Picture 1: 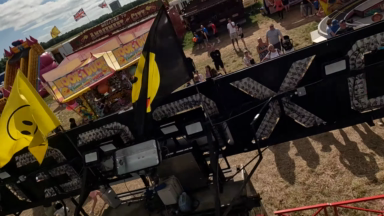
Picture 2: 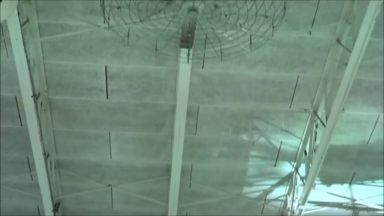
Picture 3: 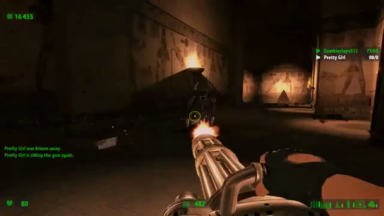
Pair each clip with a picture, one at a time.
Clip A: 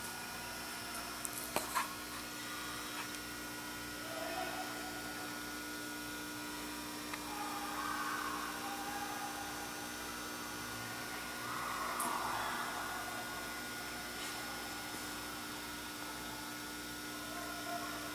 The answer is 2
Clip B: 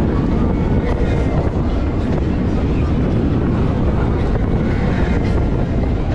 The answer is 1